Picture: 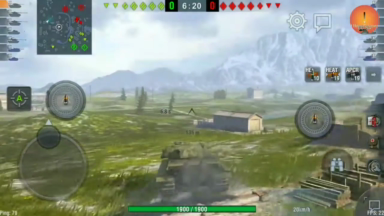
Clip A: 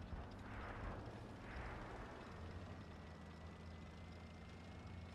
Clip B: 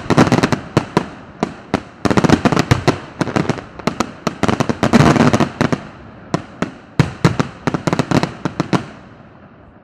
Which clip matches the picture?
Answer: A